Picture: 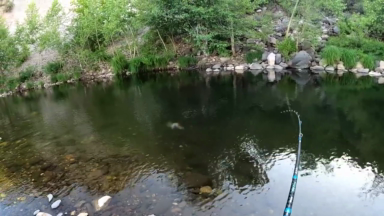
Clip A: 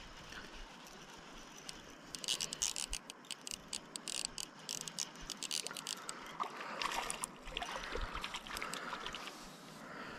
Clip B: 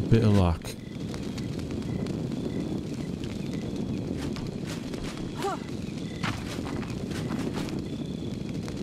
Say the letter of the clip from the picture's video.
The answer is A